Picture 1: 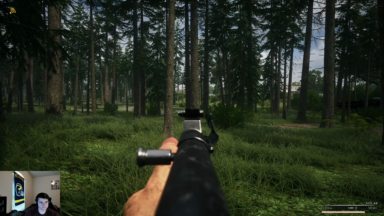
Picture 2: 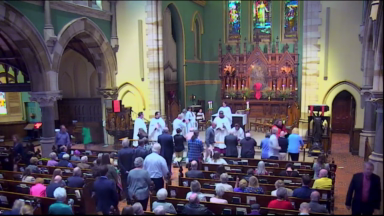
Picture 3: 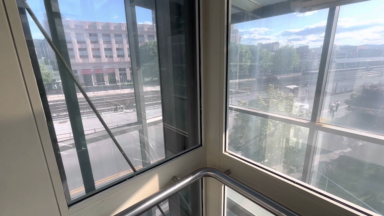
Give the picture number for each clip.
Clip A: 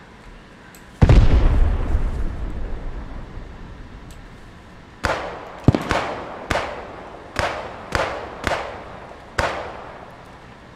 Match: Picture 1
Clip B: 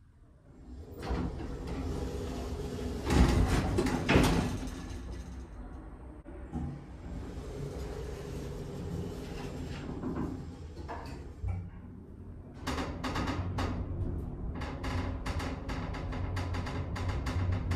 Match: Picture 3